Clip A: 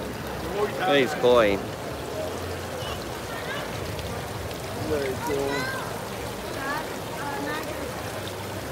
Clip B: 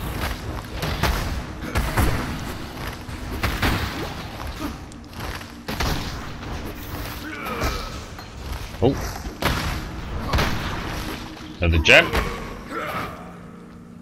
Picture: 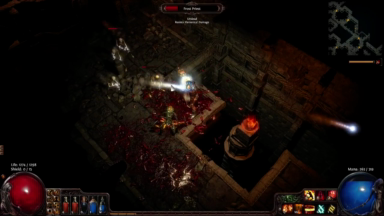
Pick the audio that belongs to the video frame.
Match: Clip B